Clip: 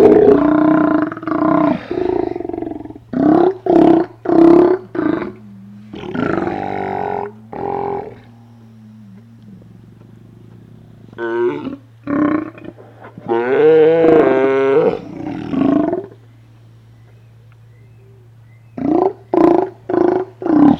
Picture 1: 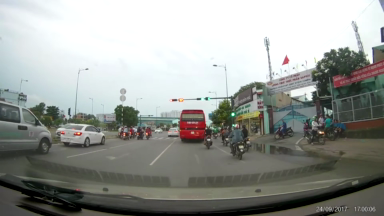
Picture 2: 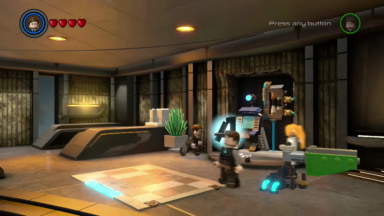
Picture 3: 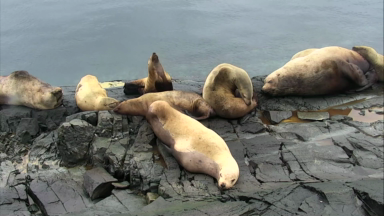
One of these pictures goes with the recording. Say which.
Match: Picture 3